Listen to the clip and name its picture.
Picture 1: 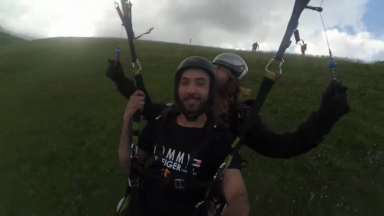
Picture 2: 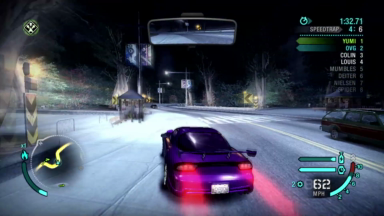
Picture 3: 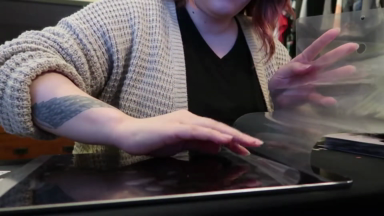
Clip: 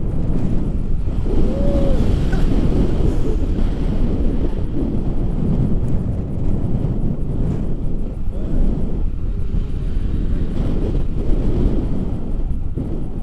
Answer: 1